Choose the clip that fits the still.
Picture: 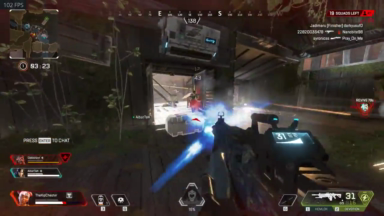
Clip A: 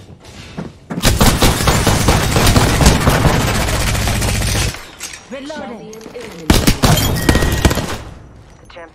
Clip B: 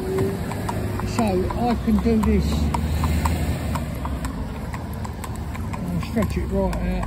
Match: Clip A